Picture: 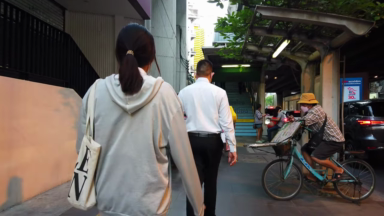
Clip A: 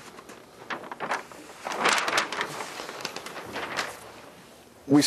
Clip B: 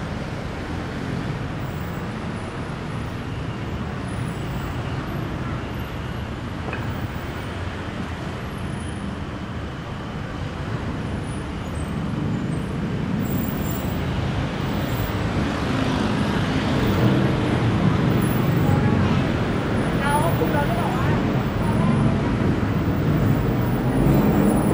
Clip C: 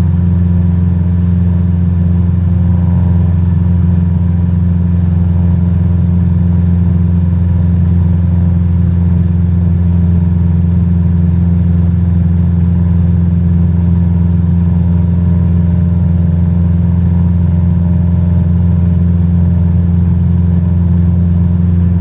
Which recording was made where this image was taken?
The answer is B